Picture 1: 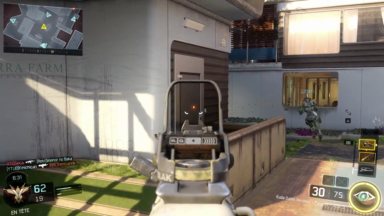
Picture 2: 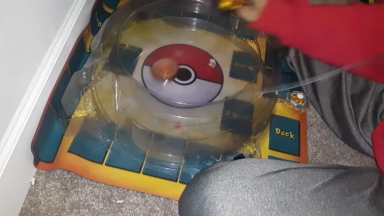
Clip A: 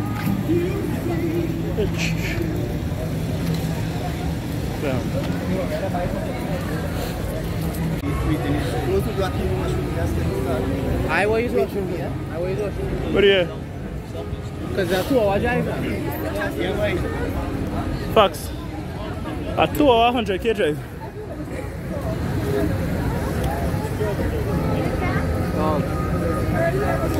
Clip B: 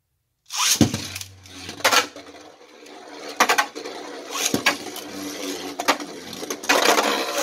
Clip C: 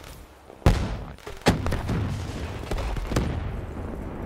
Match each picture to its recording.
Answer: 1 C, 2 B